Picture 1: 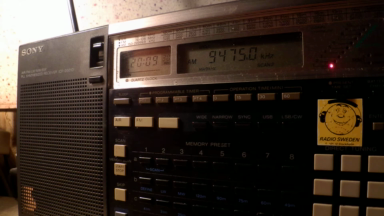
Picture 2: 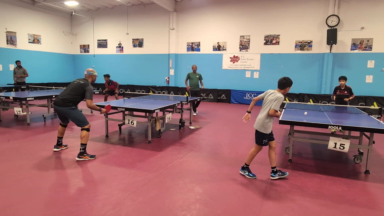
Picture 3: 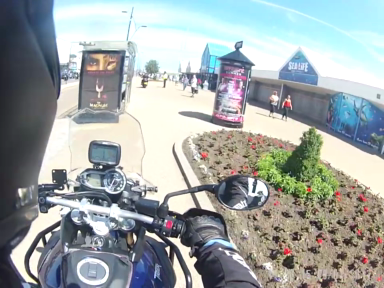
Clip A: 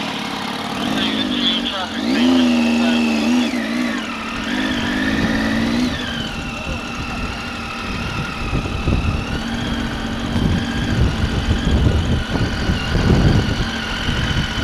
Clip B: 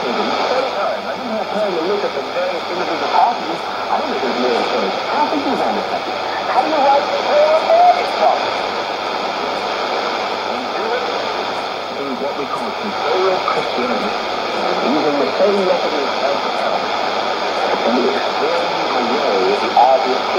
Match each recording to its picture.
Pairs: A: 3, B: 1